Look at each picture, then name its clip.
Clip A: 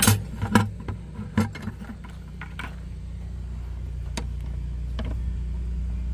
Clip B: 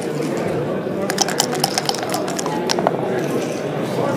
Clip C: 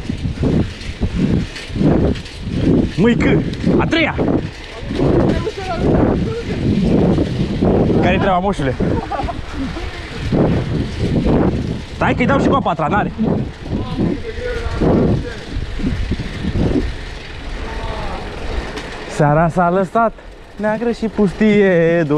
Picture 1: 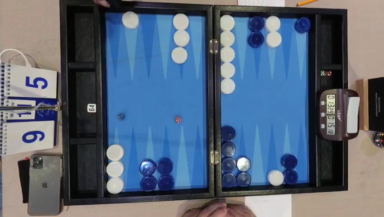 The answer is B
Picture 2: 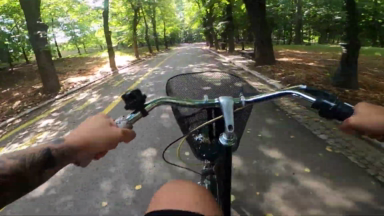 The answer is C